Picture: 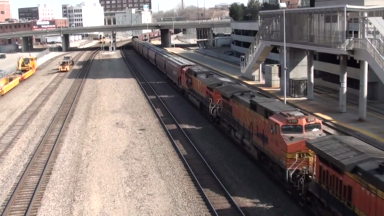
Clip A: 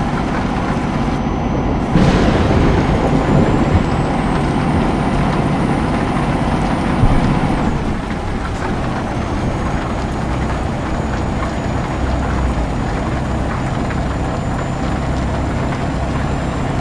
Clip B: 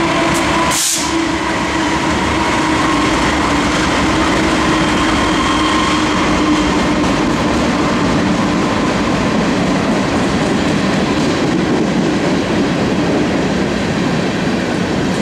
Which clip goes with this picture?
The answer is B